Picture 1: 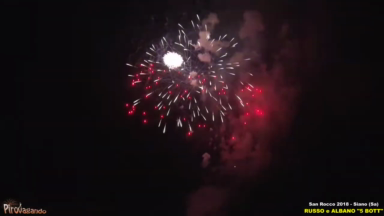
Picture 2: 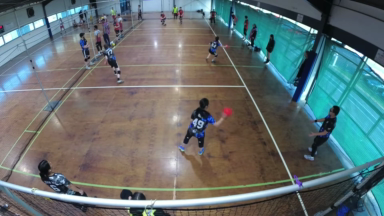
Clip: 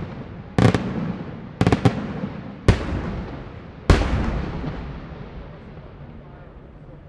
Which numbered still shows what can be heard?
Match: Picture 1